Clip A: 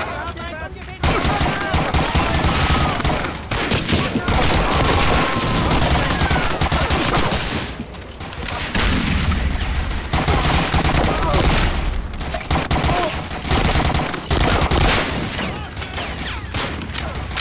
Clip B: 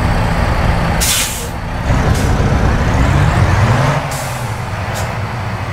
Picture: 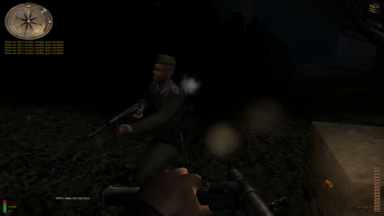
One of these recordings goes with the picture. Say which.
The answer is A